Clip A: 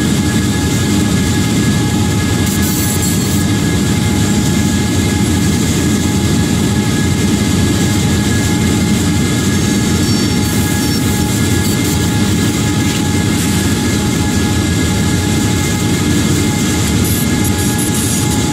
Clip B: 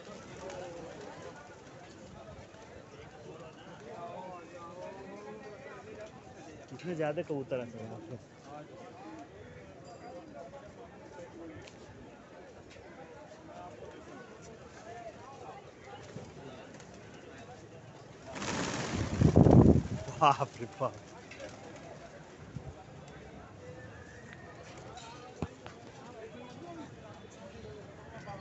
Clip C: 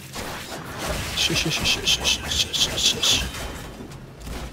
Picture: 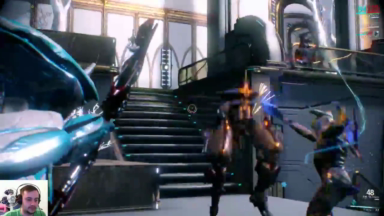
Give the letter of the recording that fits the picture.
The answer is C